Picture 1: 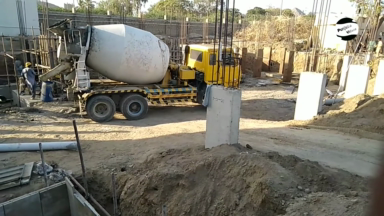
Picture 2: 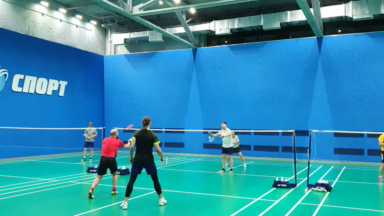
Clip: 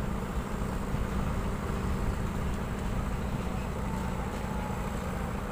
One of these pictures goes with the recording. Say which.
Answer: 1